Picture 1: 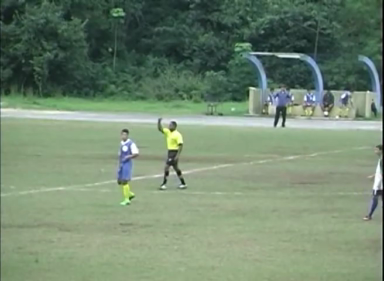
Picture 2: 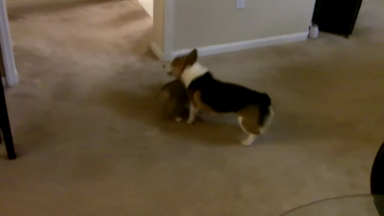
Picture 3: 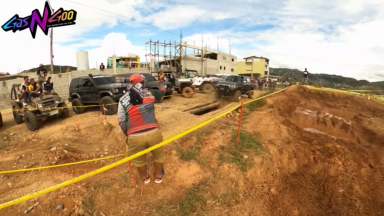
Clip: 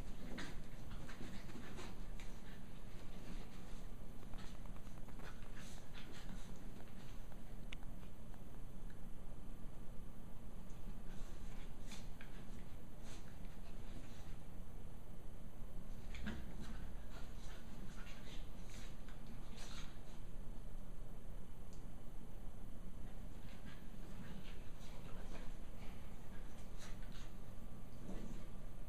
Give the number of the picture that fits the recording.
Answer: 2